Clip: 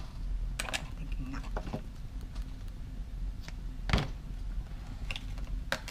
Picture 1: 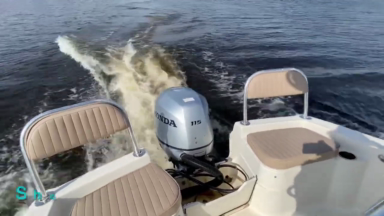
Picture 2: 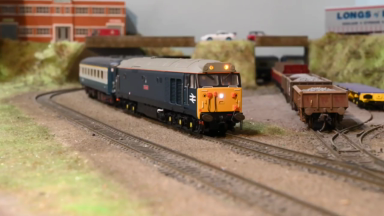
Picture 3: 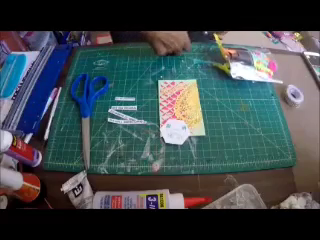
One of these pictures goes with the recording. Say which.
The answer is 3